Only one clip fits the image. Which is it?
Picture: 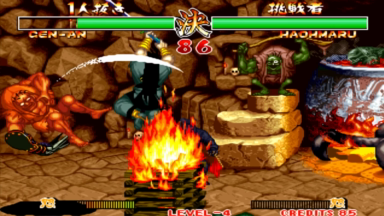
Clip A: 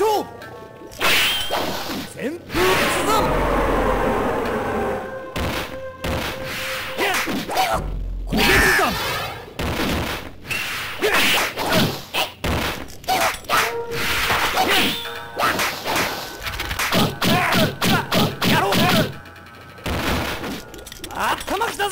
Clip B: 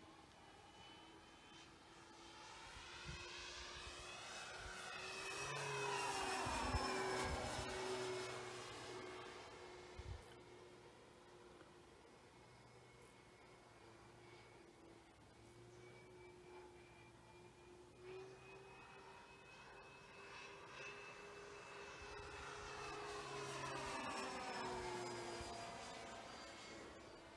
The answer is A